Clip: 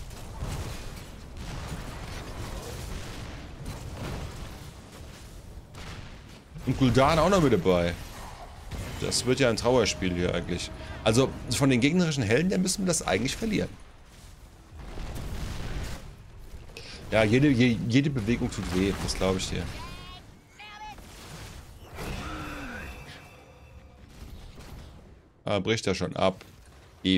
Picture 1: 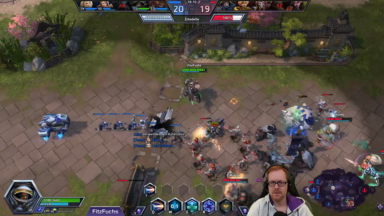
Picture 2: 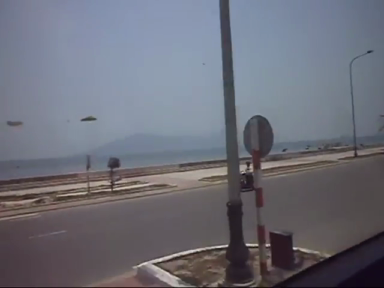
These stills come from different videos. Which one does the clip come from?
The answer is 1